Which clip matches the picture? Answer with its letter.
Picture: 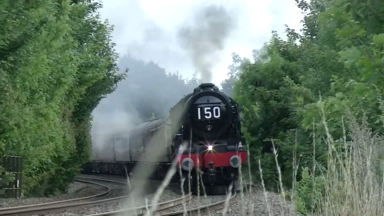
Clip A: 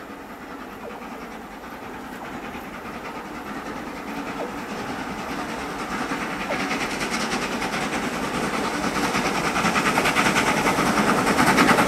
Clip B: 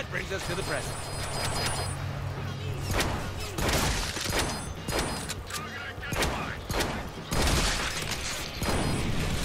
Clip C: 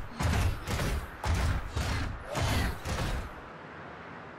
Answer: A